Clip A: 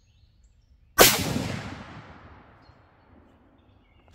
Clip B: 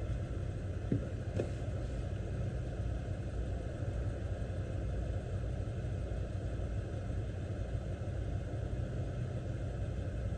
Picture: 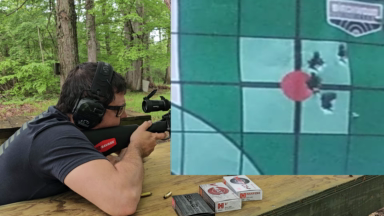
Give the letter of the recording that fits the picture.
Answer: A